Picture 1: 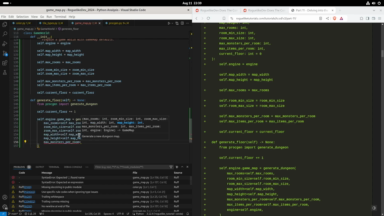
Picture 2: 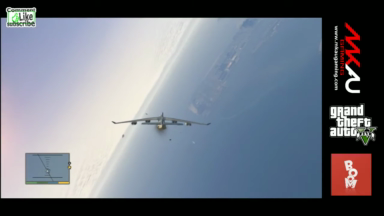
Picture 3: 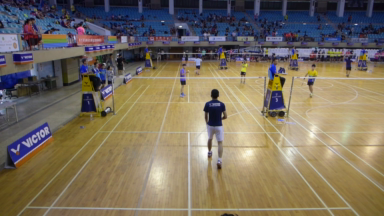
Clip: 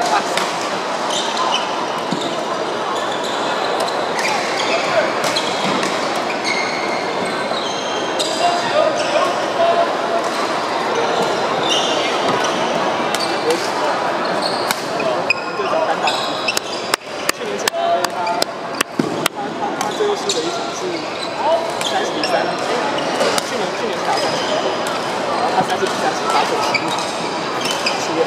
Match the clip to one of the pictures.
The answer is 3